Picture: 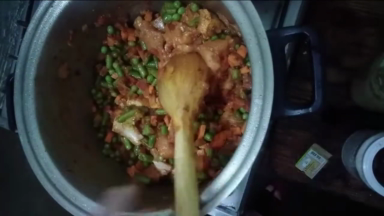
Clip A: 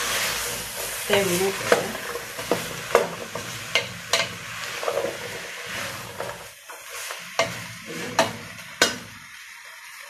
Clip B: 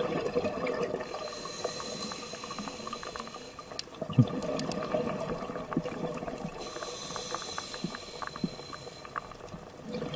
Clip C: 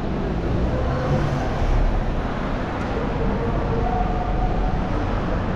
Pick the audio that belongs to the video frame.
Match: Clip A